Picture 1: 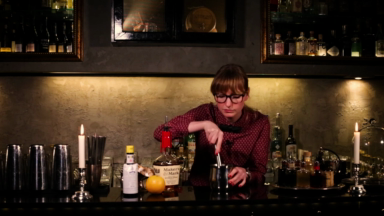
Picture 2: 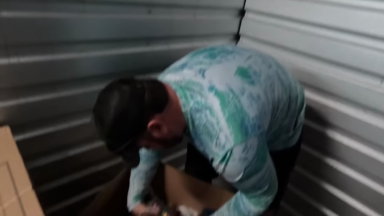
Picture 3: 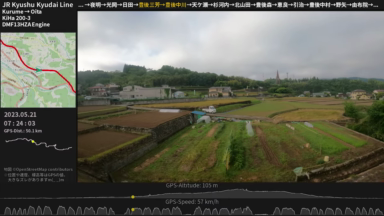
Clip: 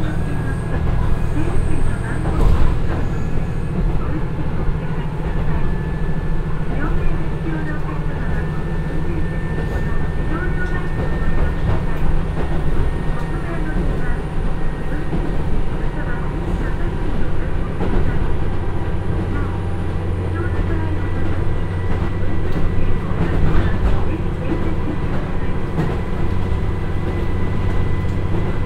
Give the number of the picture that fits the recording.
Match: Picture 3